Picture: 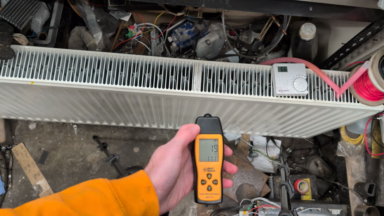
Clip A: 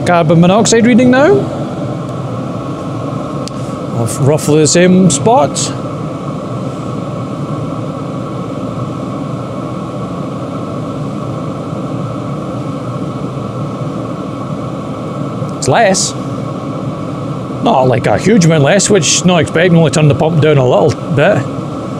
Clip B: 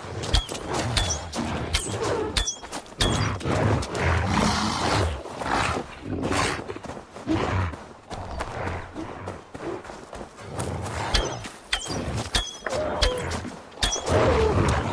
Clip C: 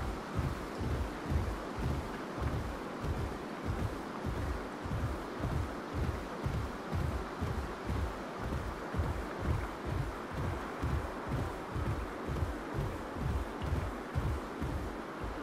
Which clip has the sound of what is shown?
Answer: A